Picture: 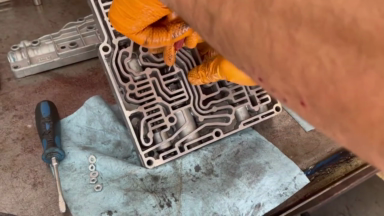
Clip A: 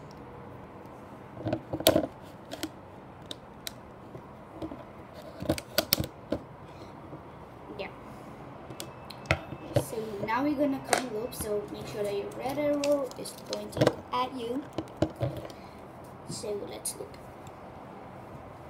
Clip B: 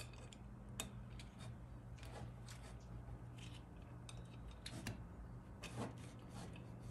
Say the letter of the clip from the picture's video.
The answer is B